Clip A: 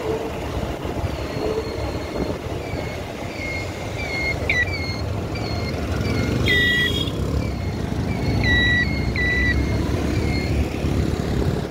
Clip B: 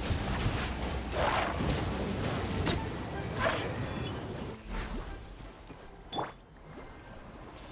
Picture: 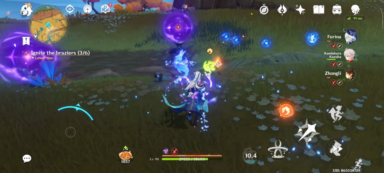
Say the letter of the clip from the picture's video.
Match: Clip B